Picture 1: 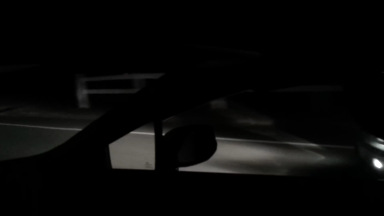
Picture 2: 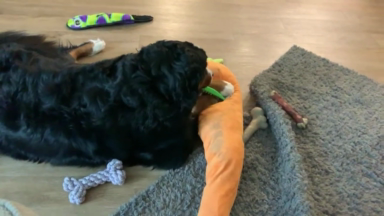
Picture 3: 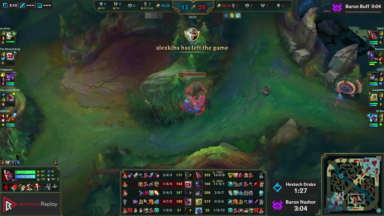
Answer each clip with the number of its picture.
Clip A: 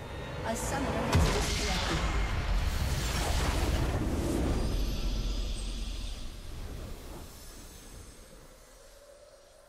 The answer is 3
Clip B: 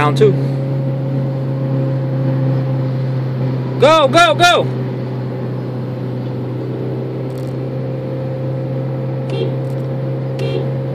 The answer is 1